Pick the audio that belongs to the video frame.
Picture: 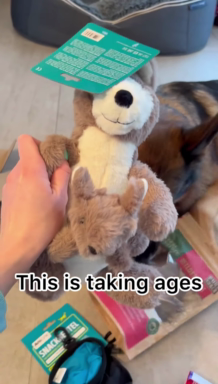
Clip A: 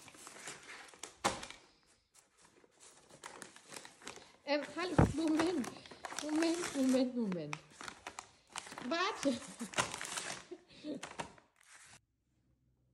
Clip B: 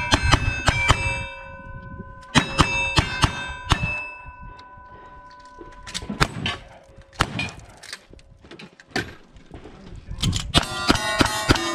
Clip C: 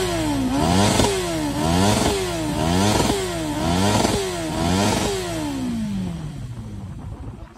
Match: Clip A